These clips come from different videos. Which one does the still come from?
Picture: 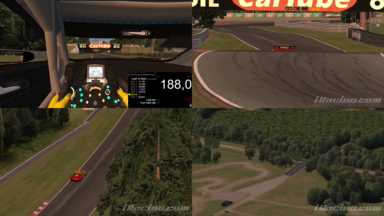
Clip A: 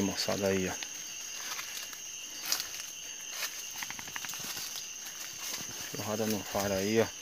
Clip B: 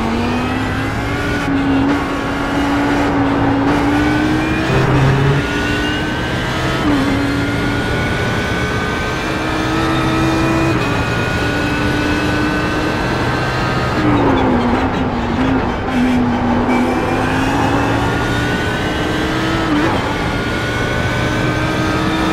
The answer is B